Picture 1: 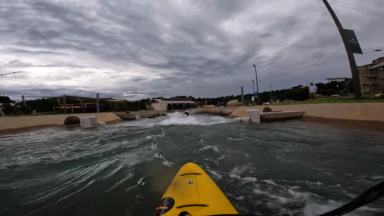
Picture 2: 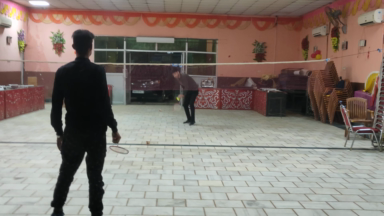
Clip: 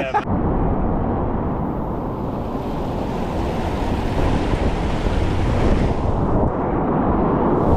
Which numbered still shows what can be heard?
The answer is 1